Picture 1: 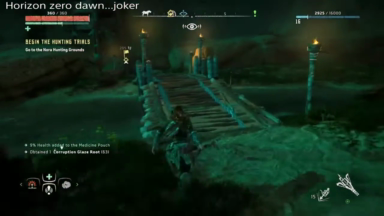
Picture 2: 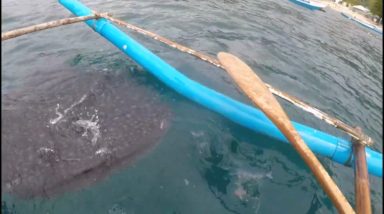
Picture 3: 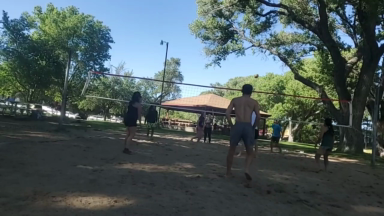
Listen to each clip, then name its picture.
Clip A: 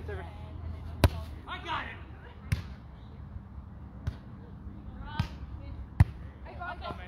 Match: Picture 3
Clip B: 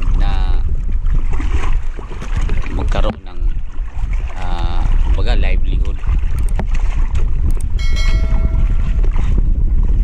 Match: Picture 2